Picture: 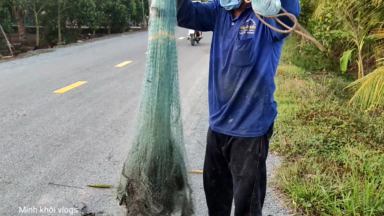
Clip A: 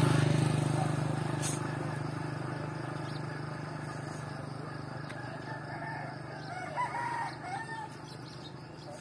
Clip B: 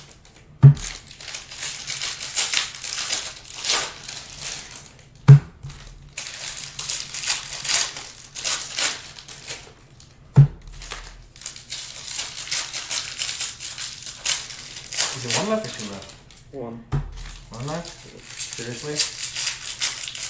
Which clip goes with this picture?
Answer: A